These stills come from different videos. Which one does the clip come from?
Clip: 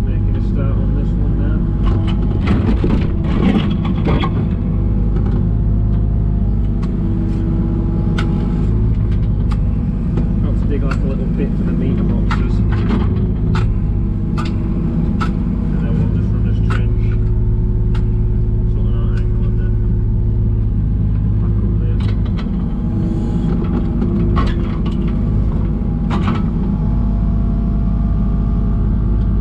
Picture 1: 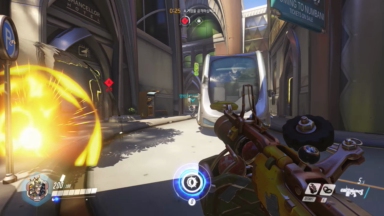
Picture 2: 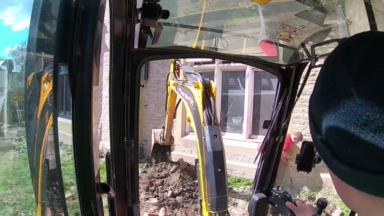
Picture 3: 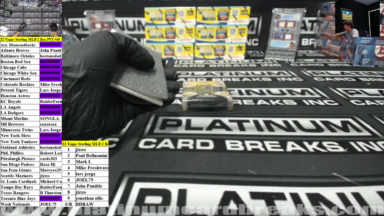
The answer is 2